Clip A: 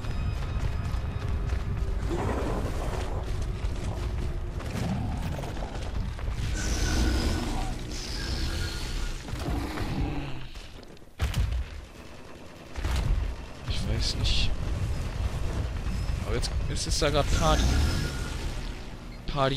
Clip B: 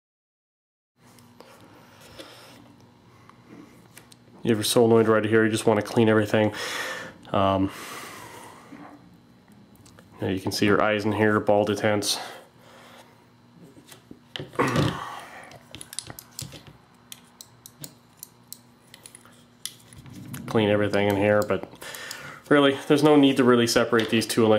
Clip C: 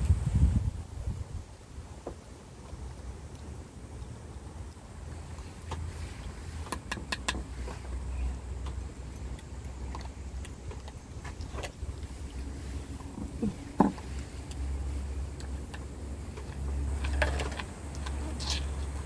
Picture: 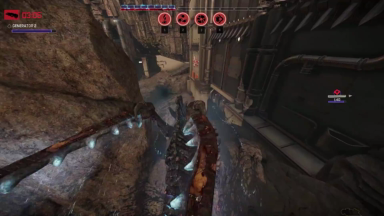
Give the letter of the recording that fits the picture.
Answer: A